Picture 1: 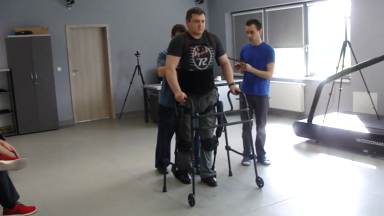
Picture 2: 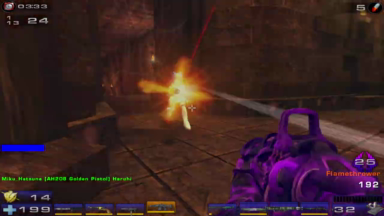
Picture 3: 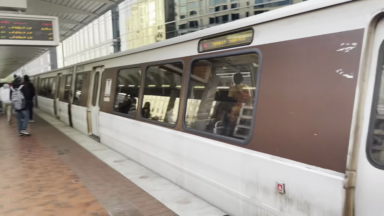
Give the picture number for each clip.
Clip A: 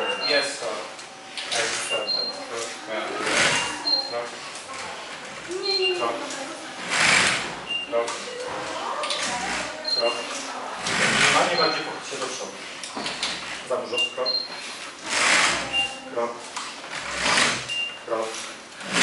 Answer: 1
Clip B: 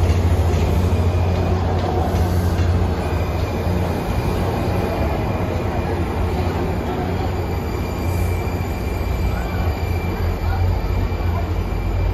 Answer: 3